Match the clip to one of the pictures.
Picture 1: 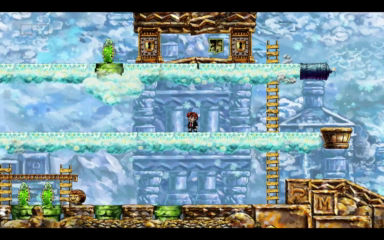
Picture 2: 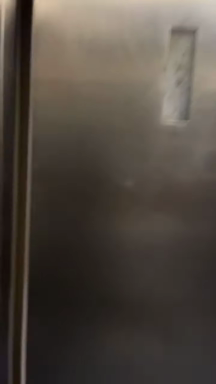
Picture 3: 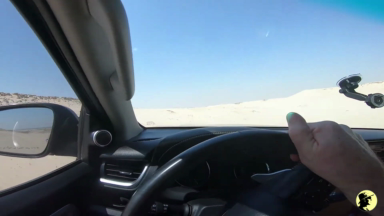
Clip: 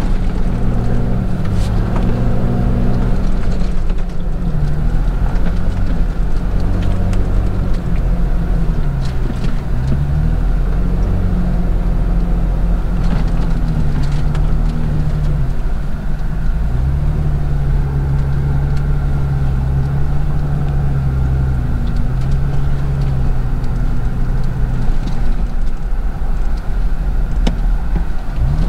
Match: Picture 3